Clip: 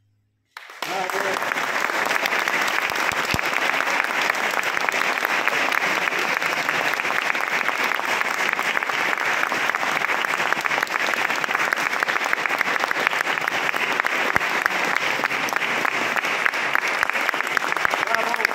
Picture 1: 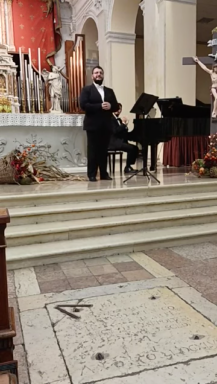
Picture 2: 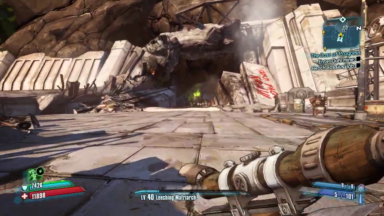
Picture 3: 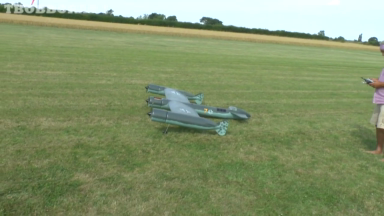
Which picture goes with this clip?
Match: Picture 1